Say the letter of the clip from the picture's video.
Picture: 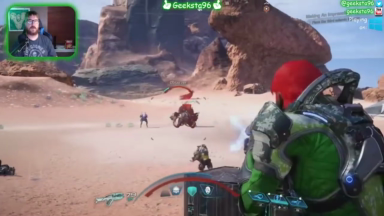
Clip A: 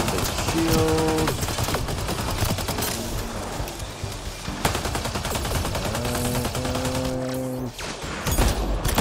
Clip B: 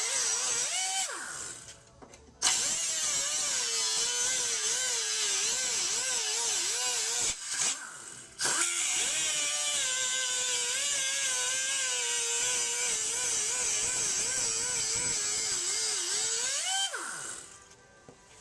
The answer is A